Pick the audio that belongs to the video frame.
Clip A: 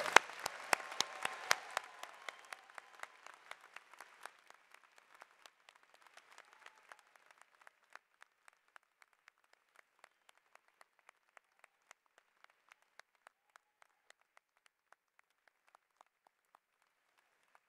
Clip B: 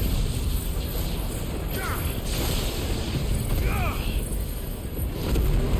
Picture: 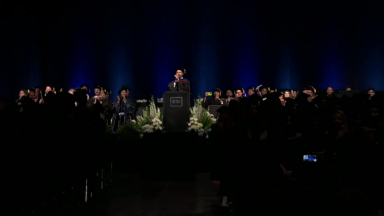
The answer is A